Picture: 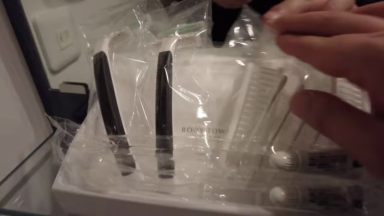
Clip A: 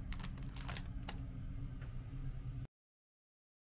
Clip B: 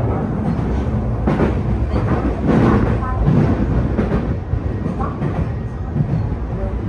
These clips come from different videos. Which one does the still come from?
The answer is A